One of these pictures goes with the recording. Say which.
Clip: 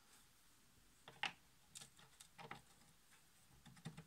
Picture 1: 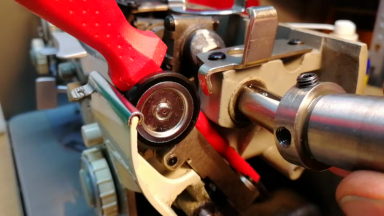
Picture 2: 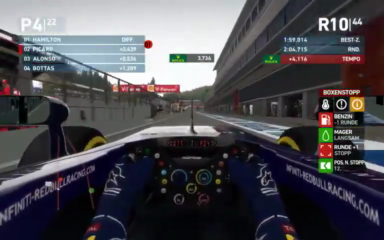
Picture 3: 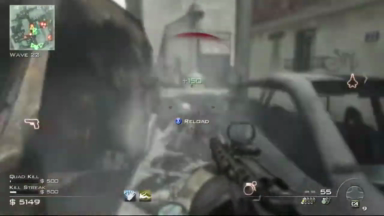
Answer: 1